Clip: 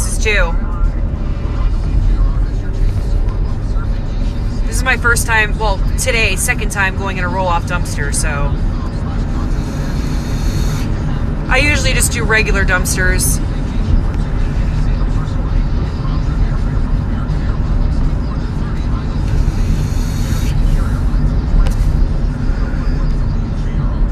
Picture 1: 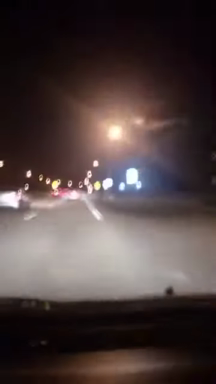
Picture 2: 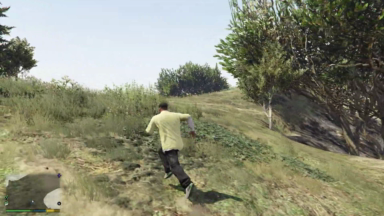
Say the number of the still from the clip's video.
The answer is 1